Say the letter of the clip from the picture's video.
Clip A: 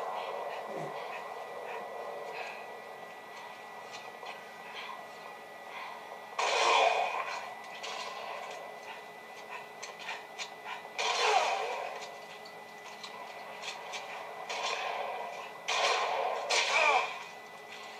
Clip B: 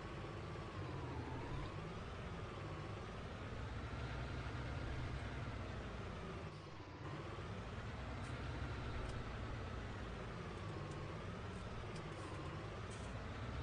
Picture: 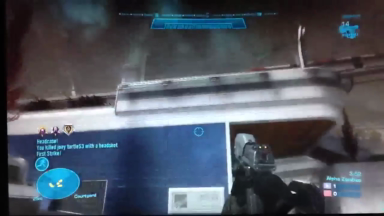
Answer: A